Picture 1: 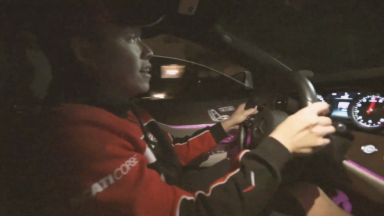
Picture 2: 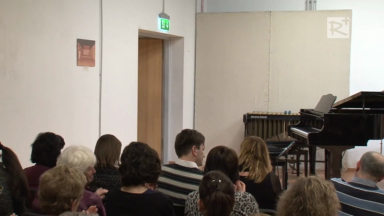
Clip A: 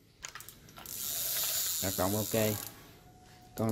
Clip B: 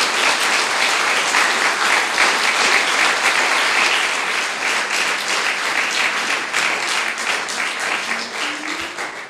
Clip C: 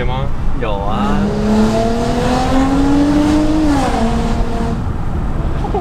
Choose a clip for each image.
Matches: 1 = C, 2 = B